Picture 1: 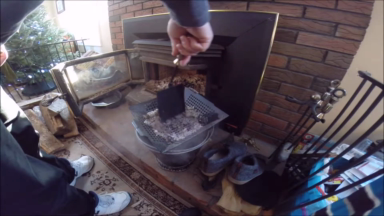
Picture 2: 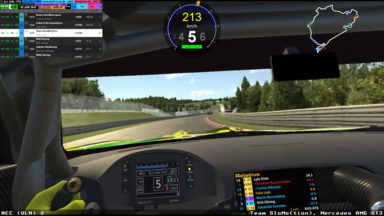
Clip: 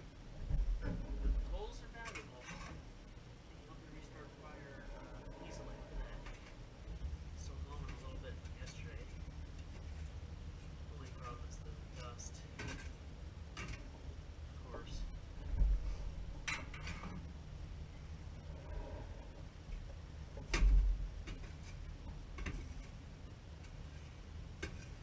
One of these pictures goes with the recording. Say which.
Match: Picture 1